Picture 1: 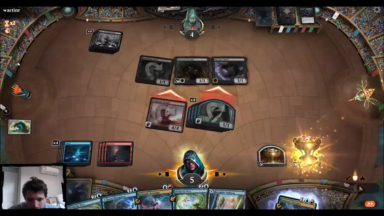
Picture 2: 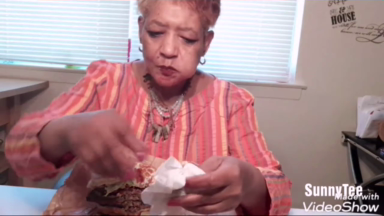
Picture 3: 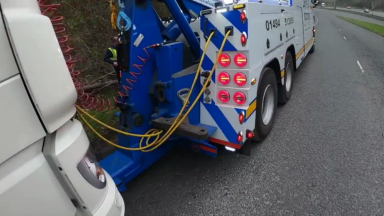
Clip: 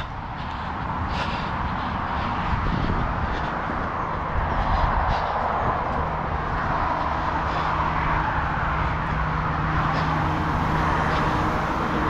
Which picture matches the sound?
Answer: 3